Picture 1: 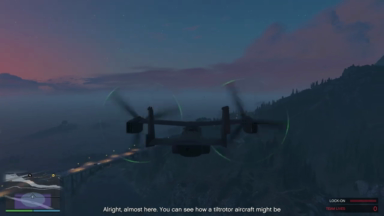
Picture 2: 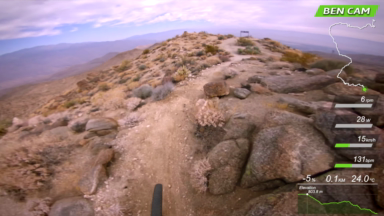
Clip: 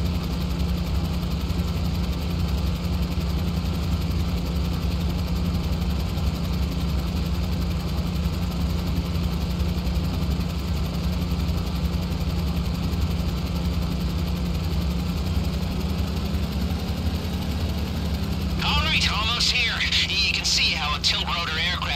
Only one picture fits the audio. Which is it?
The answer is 1